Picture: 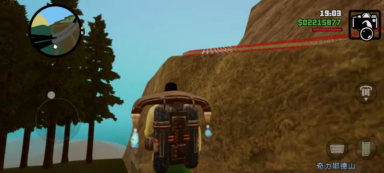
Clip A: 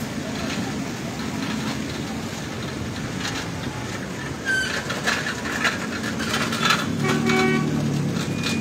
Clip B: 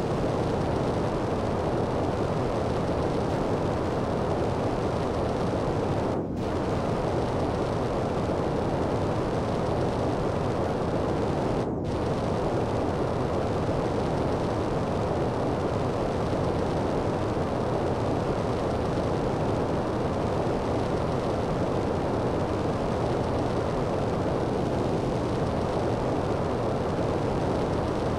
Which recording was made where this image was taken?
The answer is B